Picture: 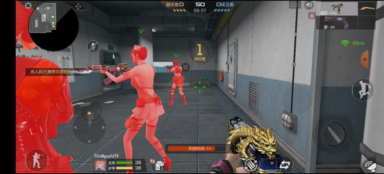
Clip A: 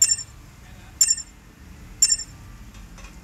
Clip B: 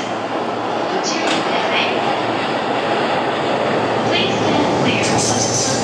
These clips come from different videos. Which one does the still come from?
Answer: A